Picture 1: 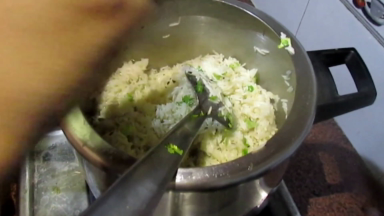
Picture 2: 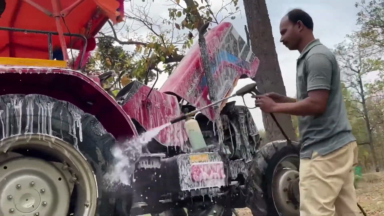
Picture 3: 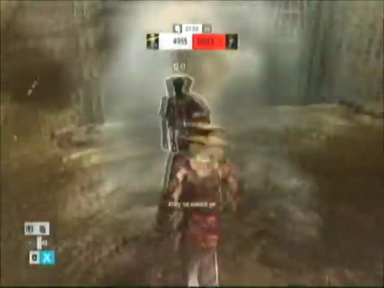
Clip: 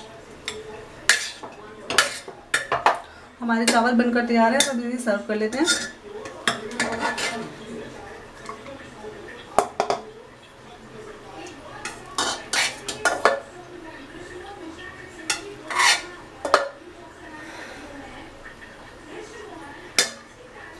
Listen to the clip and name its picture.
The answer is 1